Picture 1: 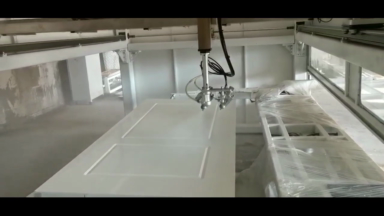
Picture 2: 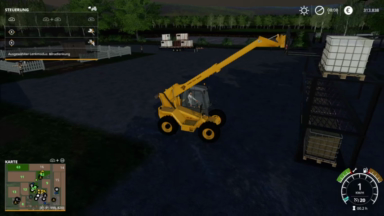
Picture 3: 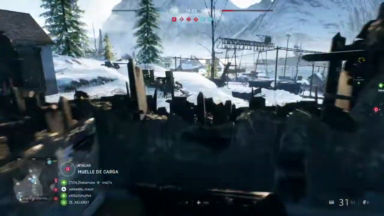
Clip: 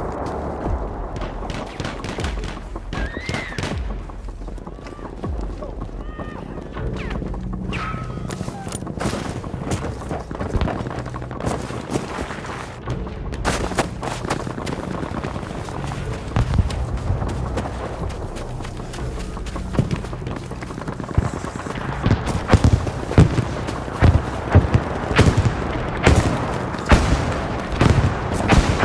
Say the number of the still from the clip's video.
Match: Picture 3